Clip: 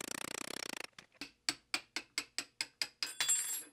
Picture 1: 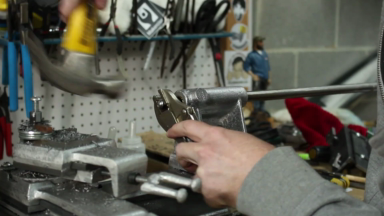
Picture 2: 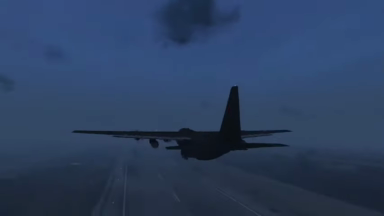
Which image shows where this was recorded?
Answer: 1